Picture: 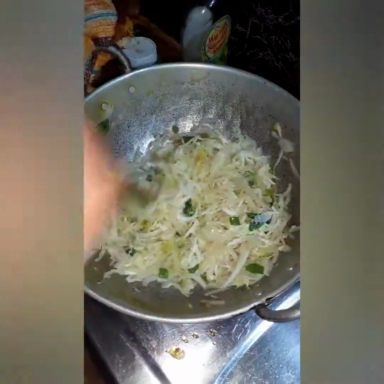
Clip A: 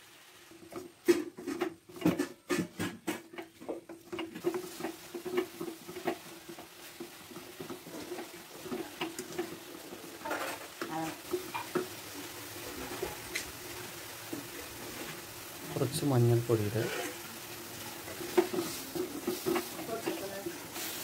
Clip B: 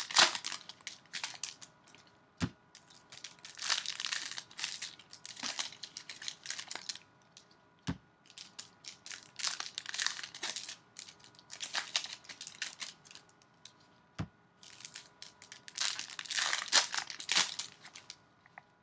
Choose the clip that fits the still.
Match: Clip A